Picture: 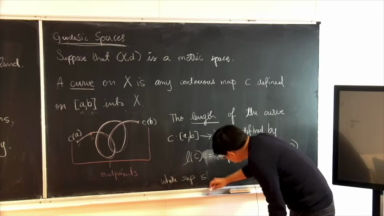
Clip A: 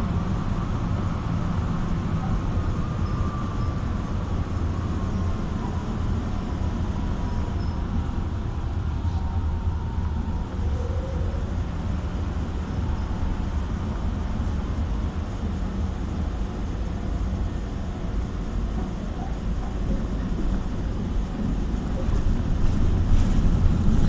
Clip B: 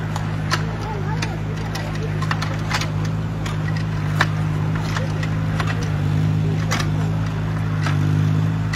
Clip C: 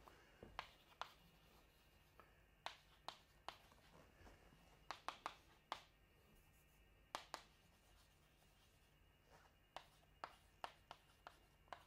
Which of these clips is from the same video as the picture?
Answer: C